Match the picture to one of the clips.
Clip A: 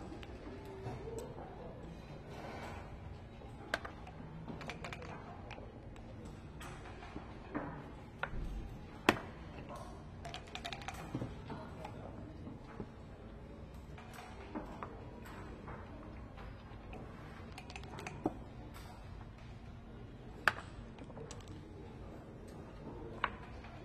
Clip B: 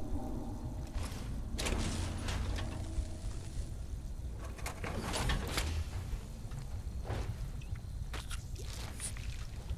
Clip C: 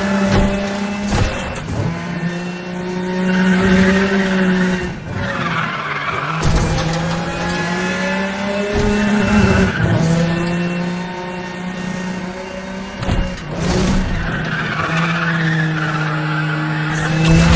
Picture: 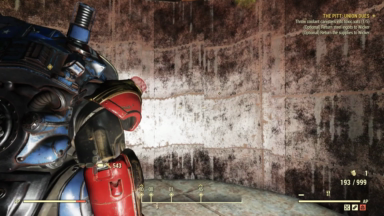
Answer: B